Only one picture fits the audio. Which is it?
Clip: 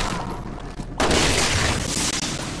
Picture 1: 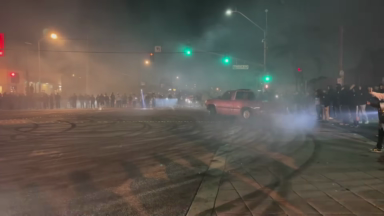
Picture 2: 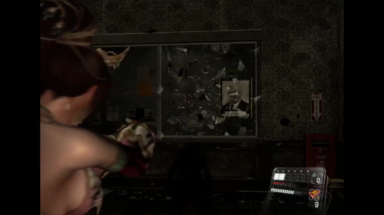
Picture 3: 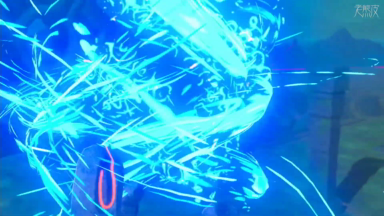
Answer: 2